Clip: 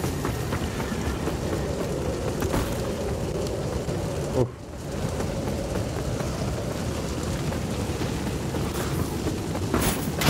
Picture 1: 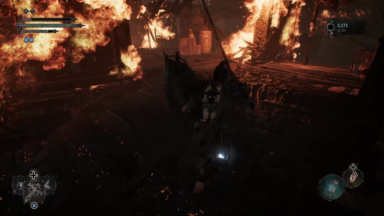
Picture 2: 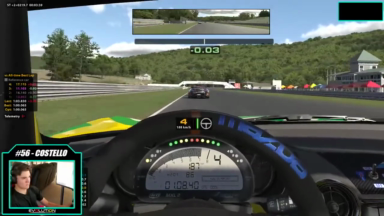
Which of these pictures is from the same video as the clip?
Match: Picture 1